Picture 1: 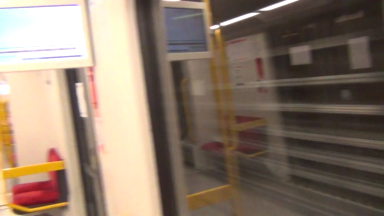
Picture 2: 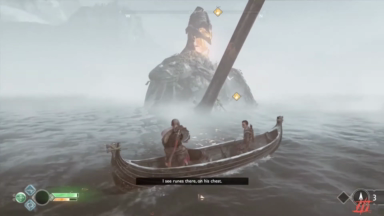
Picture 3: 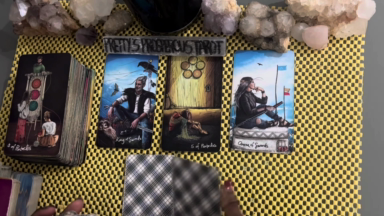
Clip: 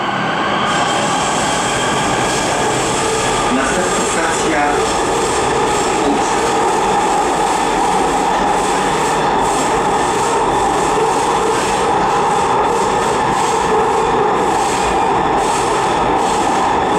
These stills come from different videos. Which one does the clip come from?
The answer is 1